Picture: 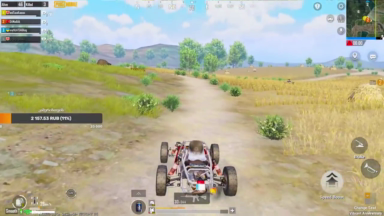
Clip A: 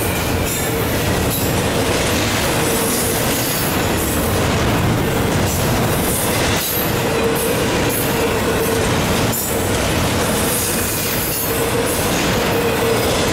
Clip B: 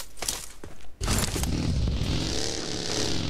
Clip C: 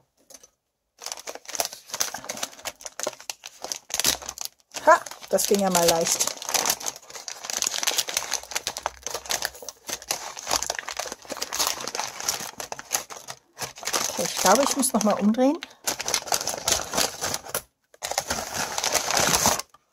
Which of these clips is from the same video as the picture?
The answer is B